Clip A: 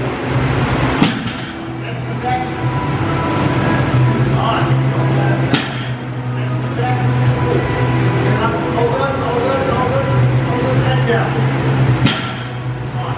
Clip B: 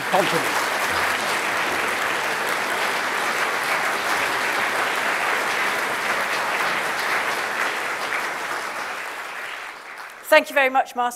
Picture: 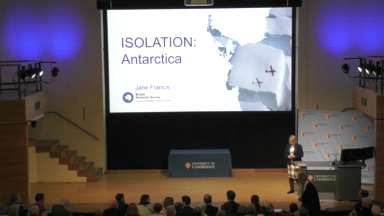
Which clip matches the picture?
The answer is B